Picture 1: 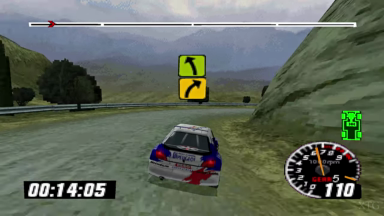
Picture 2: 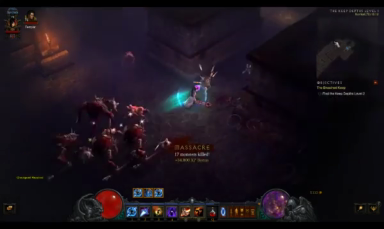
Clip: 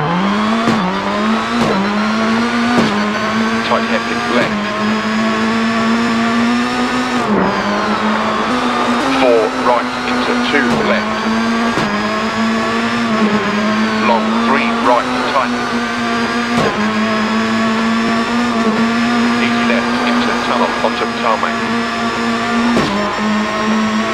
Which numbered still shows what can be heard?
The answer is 1